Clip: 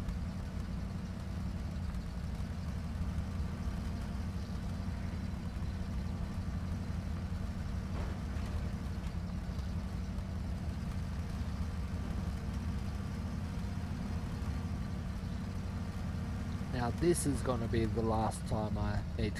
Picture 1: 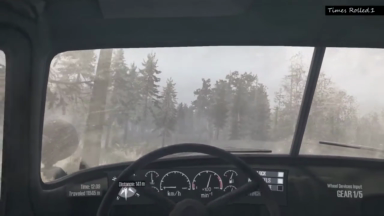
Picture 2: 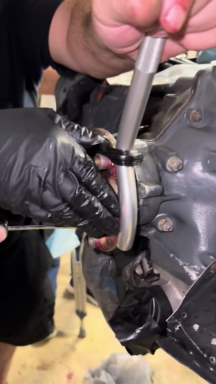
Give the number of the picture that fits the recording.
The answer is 1